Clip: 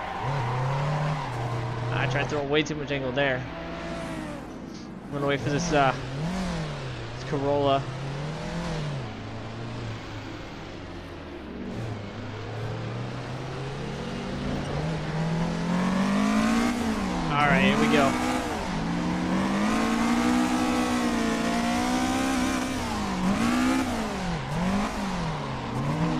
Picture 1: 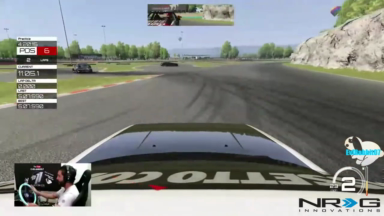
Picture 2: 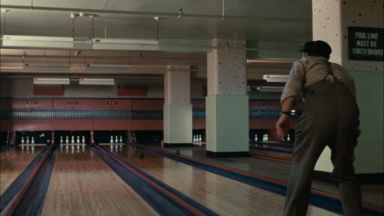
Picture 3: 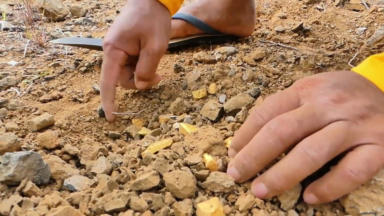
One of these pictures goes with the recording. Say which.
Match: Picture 1